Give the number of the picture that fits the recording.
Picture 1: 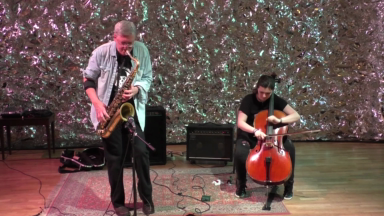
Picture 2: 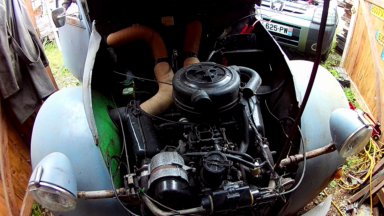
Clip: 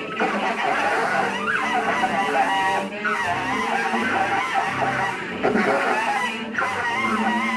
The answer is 1